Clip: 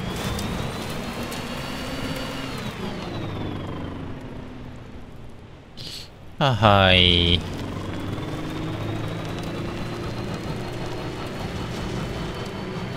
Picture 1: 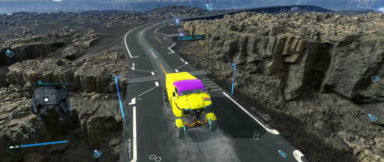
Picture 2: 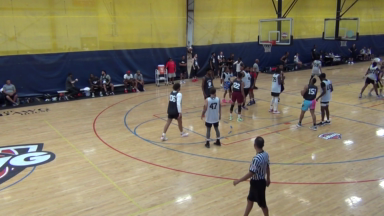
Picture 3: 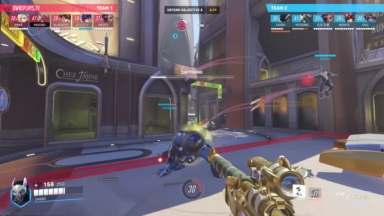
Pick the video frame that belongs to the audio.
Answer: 1